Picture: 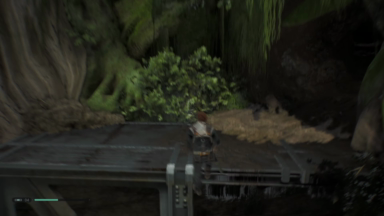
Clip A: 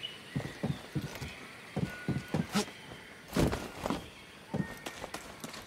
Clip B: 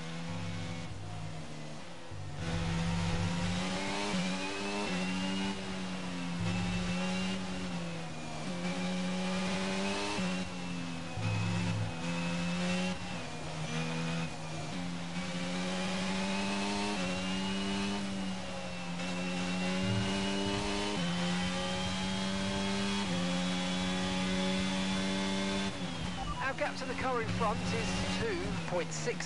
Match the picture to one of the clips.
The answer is A